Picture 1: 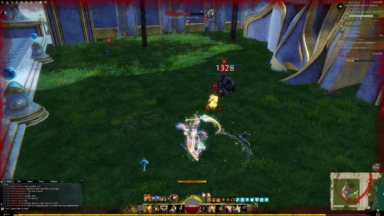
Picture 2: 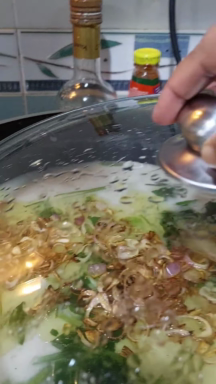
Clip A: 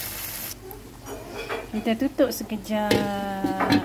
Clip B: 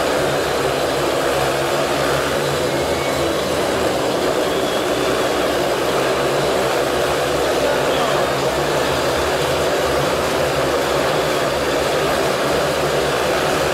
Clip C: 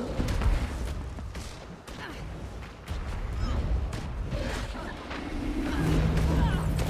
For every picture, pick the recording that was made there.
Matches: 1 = C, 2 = A